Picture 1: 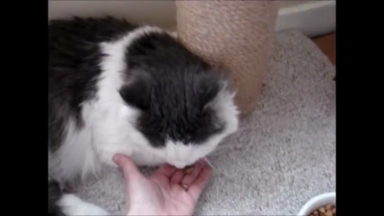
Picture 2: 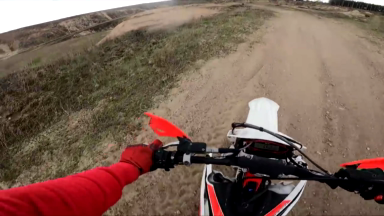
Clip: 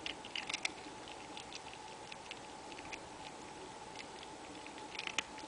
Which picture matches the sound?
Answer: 1